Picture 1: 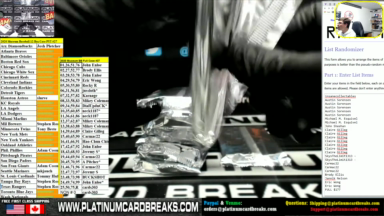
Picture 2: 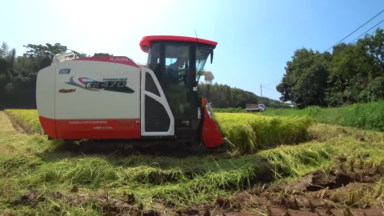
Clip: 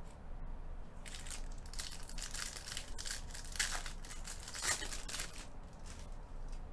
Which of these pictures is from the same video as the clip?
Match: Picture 1